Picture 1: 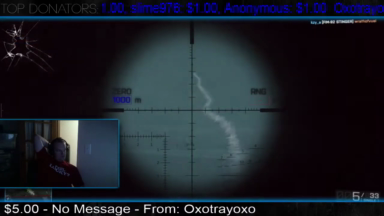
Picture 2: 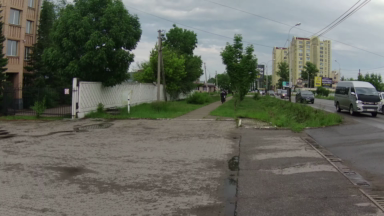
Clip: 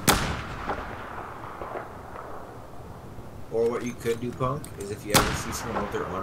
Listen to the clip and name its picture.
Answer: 1